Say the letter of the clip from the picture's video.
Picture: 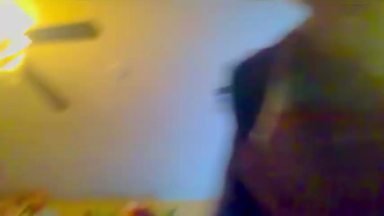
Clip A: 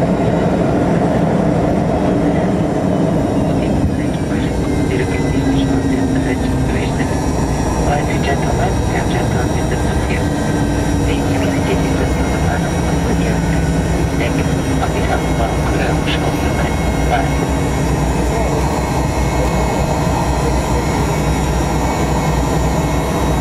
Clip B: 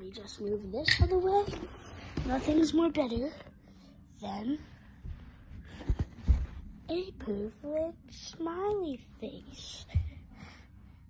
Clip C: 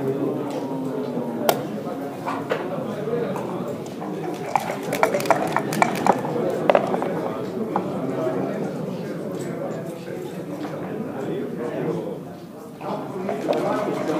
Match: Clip B